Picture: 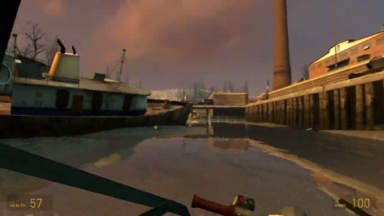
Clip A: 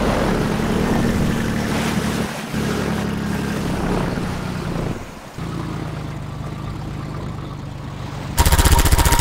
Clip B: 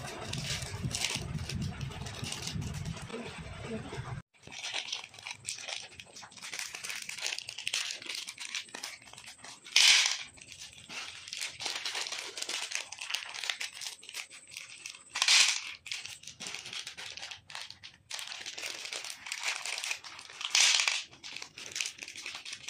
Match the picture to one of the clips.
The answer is A